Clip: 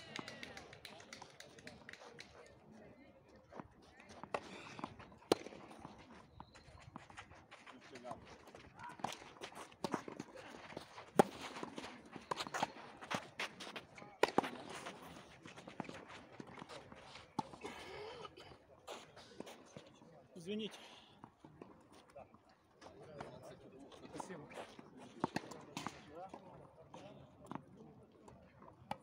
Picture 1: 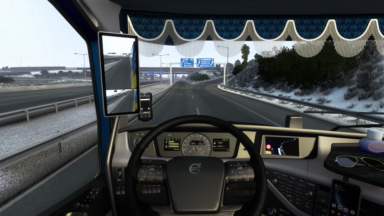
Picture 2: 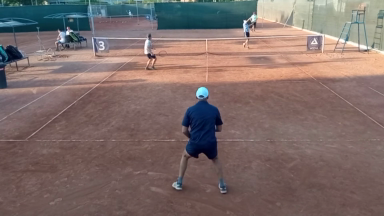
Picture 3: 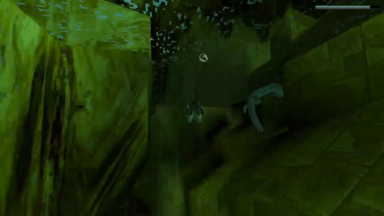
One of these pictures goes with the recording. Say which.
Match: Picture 2